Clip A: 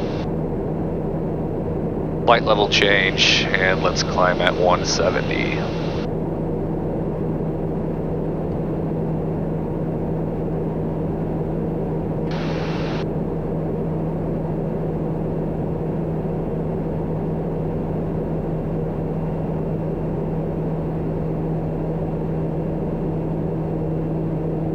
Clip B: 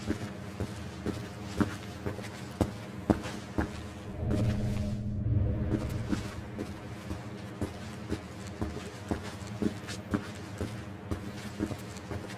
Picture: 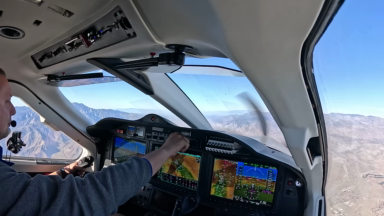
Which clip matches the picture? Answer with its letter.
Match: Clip A